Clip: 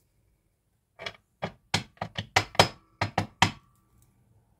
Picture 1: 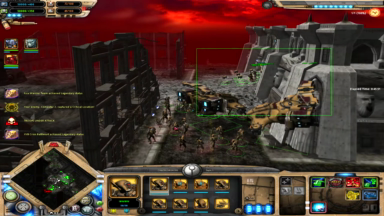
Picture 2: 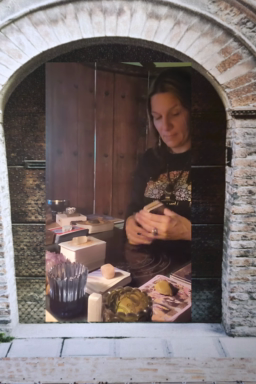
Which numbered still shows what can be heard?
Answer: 2